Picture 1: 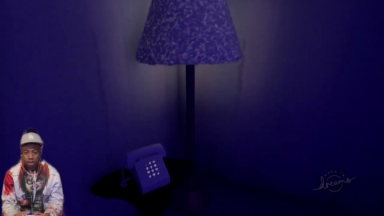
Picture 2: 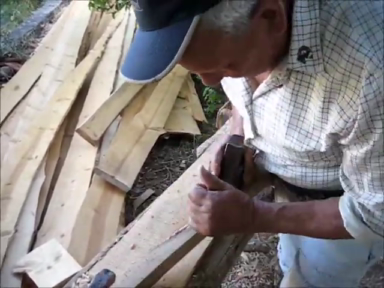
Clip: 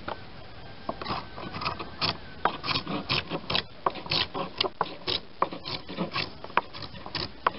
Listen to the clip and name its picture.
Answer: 2